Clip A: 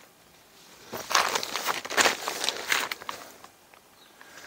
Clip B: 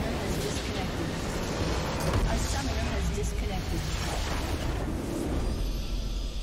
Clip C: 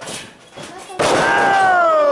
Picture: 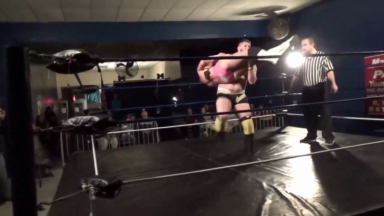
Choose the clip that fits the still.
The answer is C